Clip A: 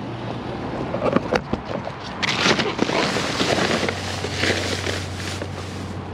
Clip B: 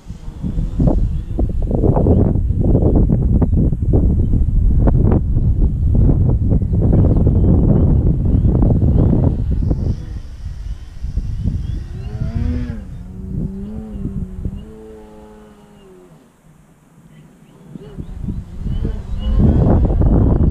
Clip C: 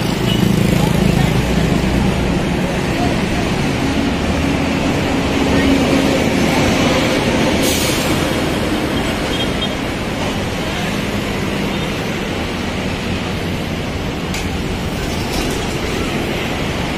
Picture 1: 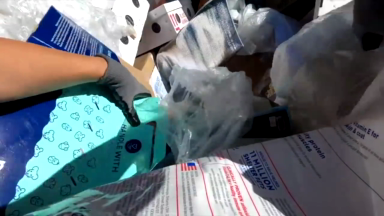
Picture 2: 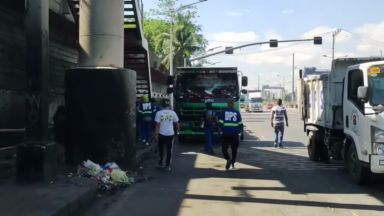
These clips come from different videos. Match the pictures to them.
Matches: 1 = A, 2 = C